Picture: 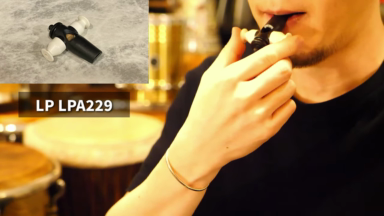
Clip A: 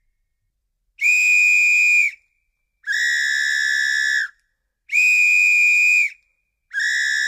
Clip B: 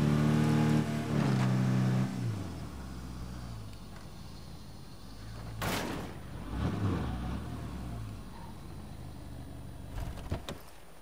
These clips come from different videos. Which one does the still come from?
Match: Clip A